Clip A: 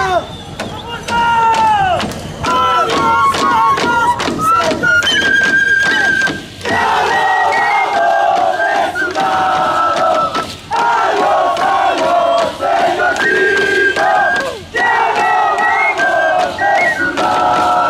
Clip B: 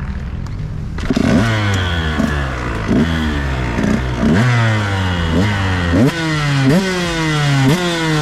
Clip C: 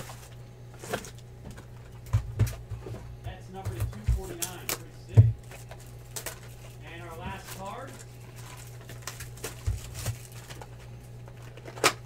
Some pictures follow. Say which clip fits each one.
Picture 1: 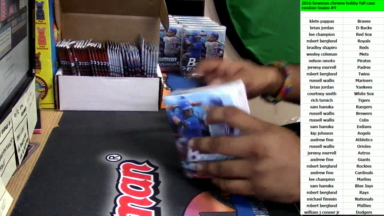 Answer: C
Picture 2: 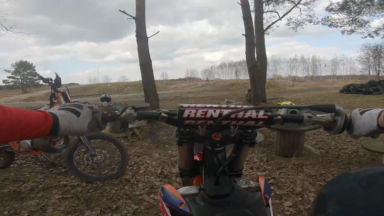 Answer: B